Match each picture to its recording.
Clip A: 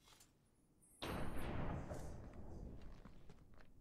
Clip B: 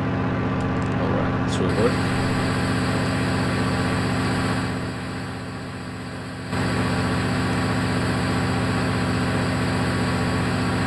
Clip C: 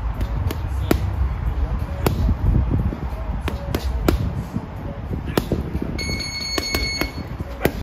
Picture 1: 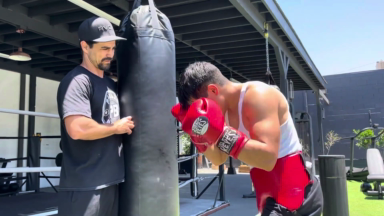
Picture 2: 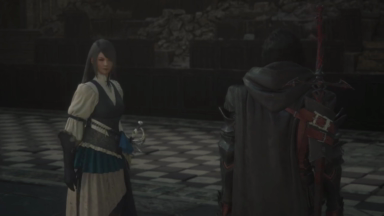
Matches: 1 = C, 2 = A